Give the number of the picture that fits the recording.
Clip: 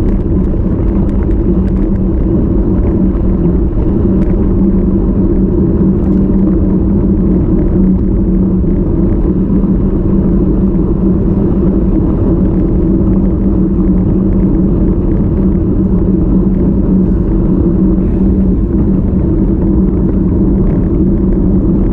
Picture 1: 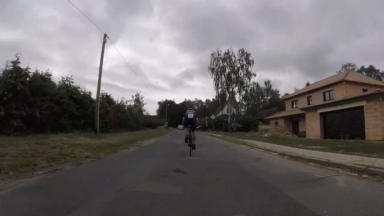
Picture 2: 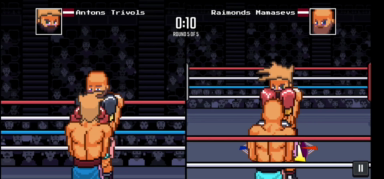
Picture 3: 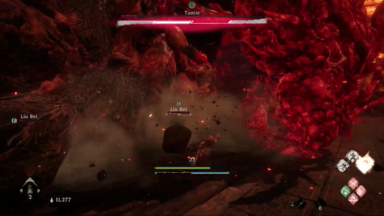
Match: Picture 1